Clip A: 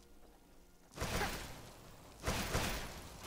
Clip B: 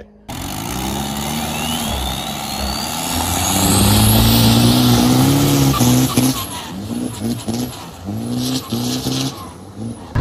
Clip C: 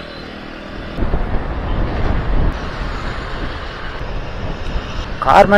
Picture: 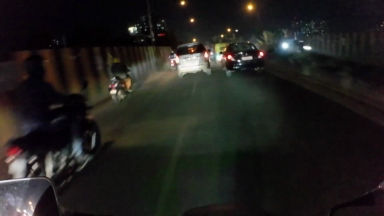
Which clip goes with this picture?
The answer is C